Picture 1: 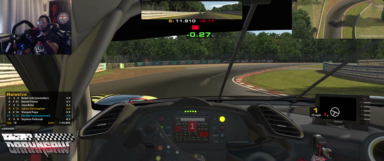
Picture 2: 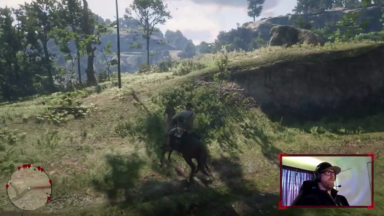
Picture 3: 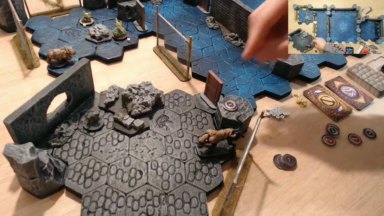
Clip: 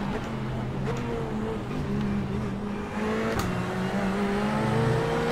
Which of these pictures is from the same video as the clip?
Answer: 1